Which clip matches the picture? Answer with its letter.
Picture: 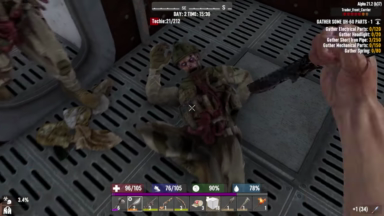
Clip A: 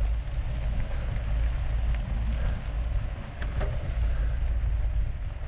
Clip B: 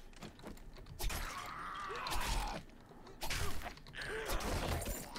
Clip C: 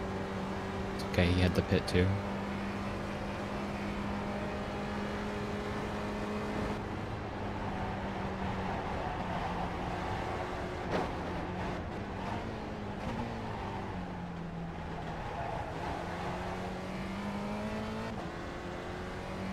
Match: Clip B